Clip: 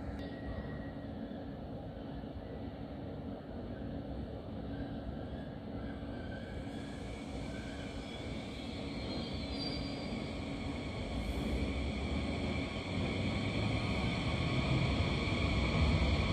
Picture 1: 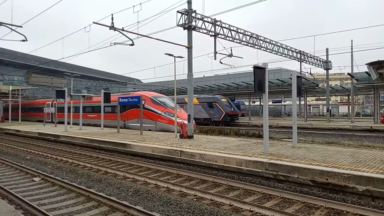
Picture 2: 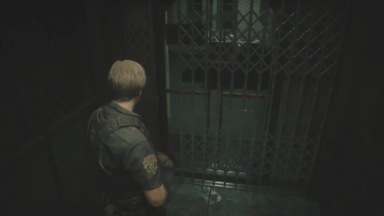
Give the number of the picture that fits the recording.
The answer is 1